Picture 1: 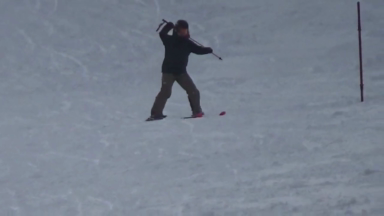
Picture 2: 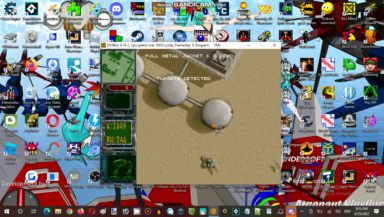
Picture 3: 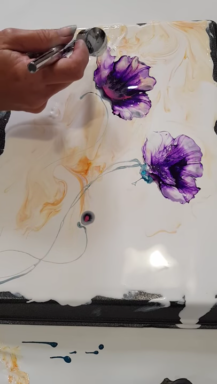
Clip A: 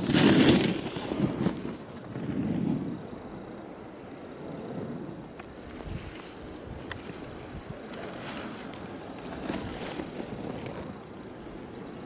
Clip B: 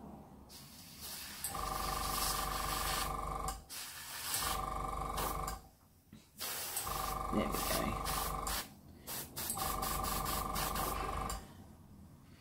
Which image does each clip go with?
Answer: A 1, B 3